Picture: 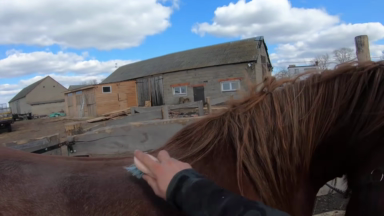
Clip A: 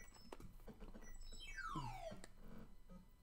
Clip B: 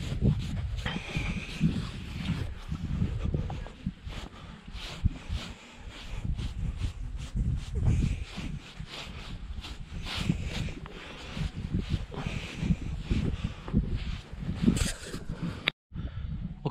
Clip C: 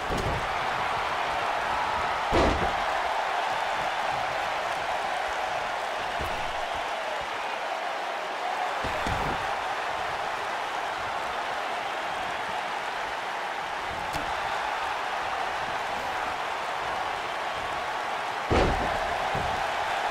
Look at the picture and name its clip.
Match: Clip B